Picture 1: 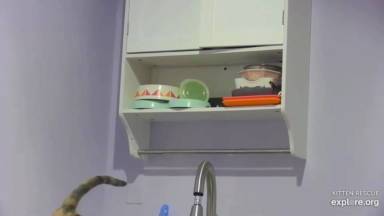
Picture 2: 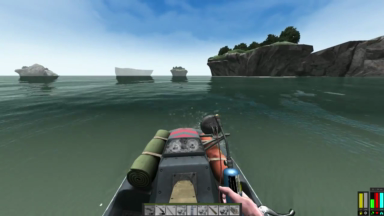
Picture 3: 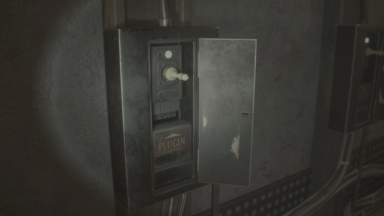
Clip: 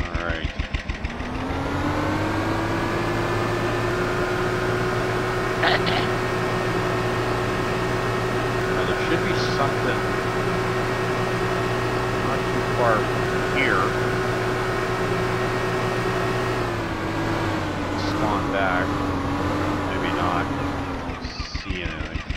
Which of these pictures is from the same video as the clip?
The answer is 2